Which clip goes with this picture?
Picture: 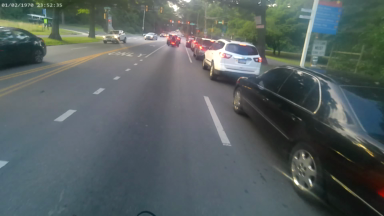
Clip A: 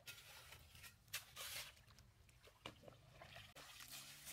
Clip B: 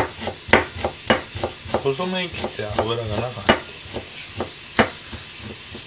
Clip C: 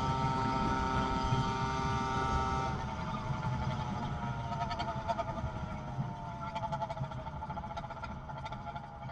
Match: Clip C